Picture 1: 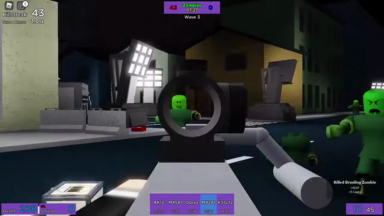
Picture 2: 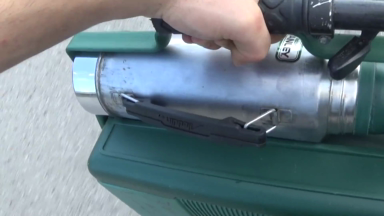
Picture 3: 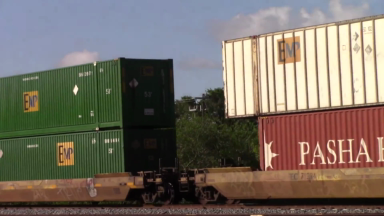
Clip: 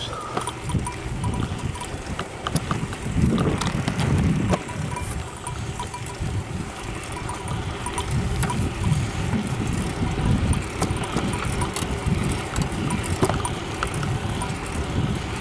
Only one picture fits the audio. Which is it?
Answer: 2